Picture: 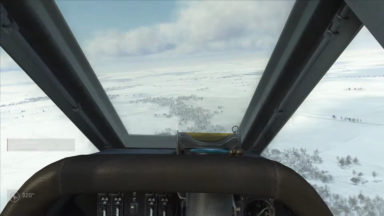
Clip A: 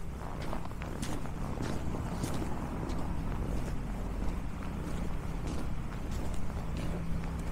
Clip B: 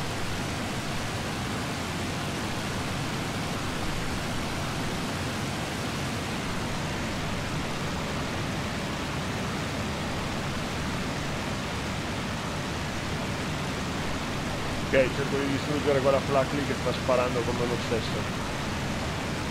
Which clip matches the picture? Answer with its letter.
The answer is B